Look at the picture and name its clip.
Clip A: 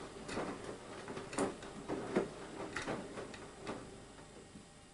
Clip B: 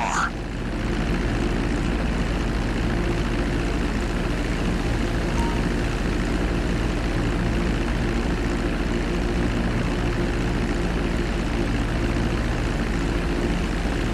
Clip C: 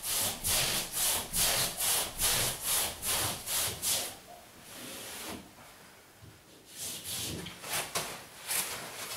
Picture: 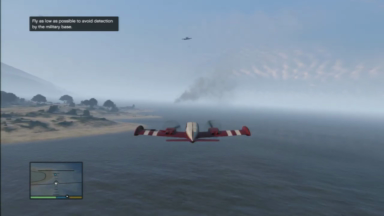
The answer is B